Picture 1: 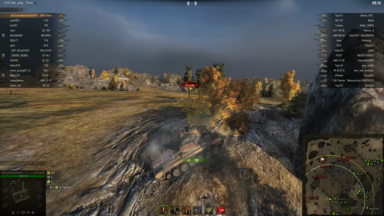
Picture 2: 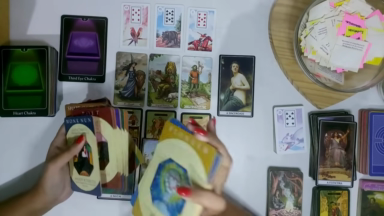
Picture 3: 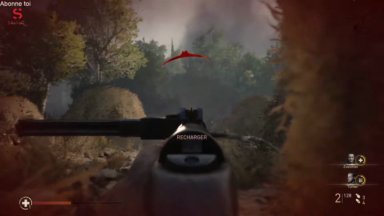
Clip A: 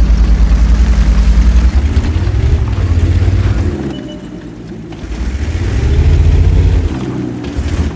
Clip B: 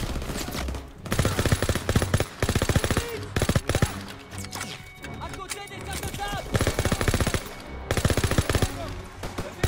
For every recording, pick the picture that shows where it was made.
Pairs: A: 1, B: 3